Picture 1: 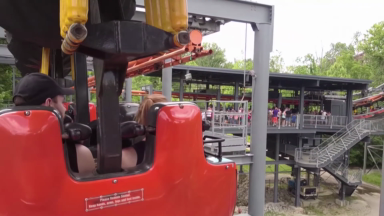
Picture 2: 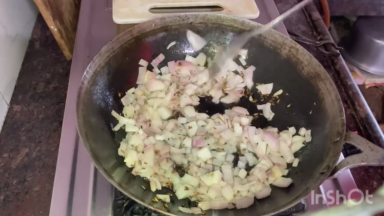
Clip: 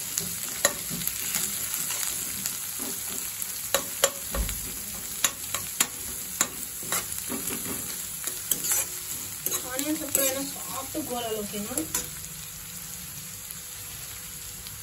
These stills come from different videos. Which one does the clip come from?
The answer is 2